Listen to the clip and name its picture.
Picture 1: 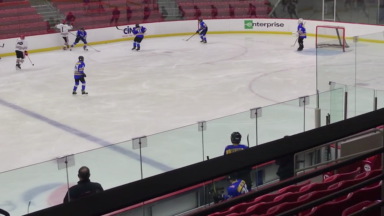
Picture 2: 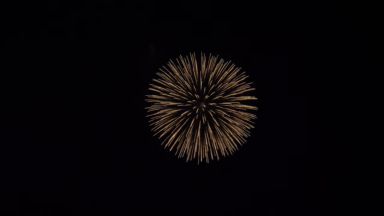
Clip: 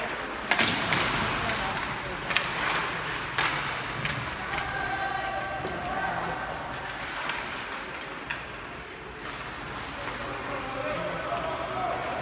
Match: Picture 1